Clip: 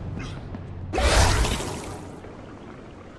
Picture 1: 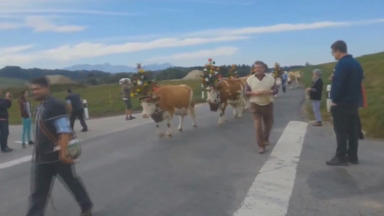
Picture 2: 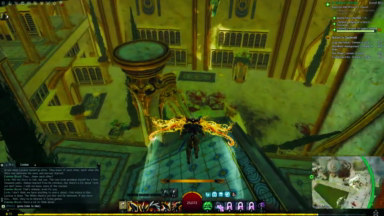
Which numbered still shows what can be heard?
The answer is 2